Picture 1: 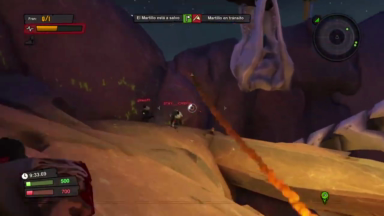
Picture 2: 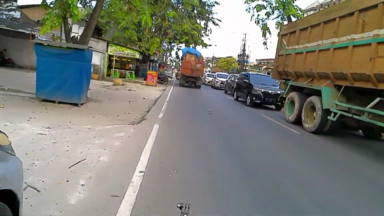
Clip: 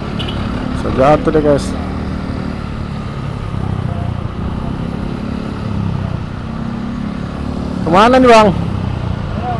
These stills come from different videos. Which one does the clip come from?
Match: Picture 2